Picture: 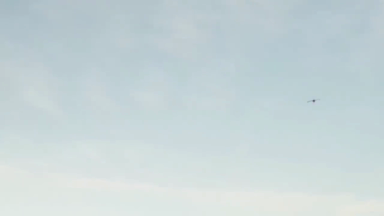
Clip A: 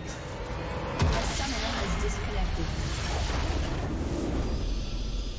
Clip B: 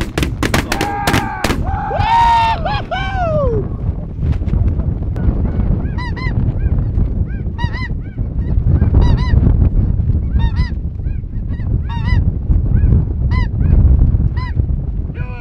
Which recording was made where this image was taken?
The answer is B